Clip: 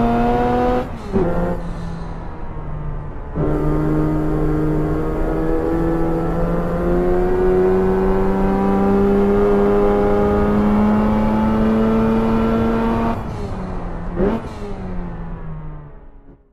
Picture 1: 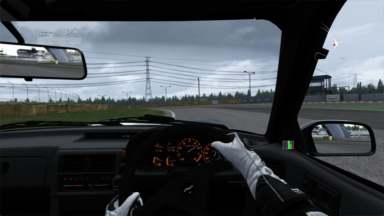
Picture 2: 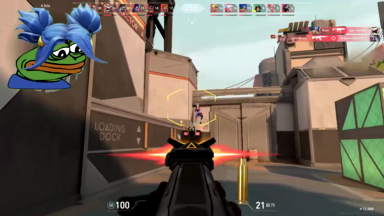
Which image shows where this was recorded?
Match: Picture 1